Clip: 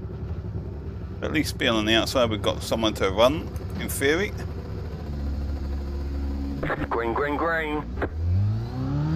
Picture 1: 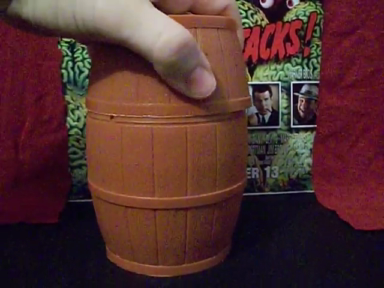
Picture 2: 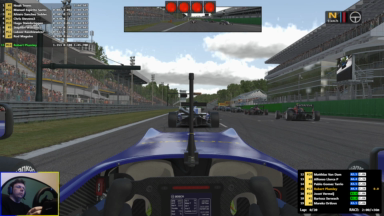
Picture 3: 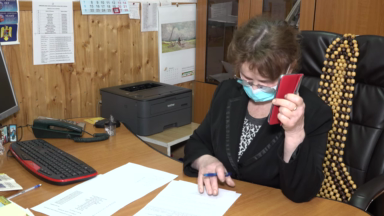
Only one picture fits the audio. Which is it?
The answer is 2